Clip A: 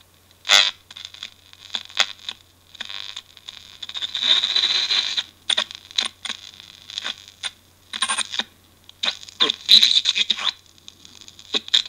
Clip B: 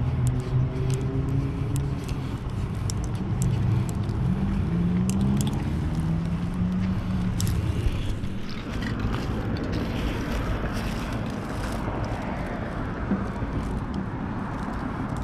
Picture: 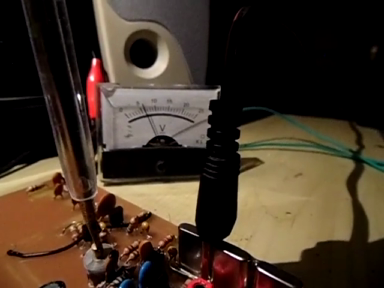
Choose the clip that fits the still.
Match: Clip A